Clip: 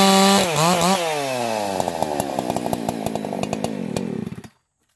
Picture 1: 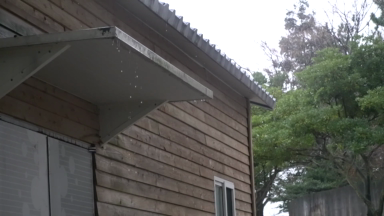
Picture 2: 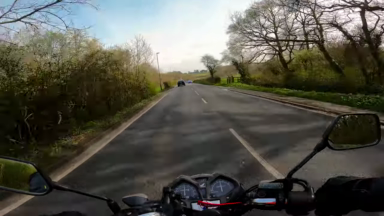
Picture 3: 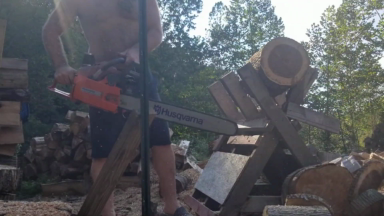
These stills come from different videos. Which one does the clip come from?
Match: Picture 3